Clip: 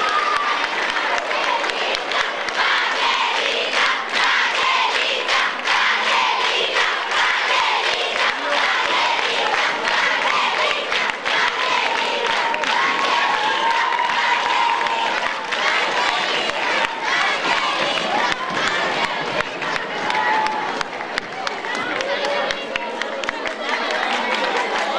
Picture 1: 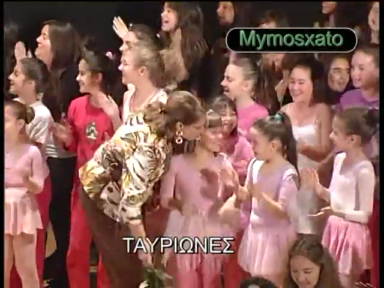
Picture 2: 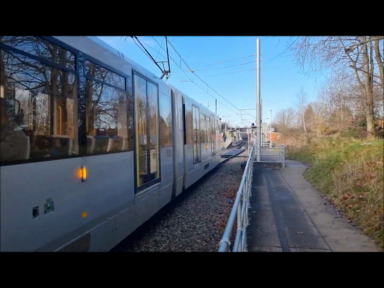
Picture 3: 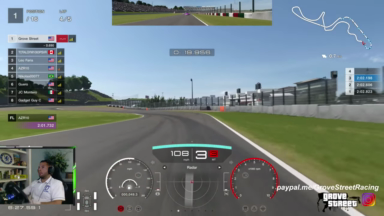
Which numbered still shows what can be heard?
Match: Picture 1